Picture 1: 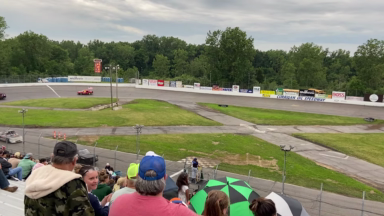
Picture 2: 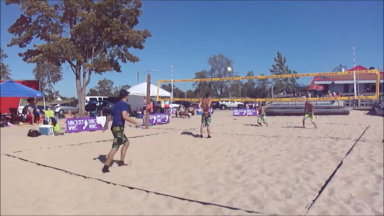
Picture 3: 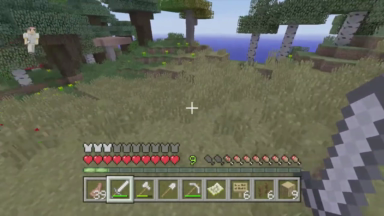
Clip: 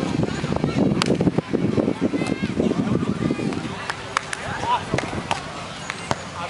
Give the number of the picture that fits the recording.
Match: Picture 2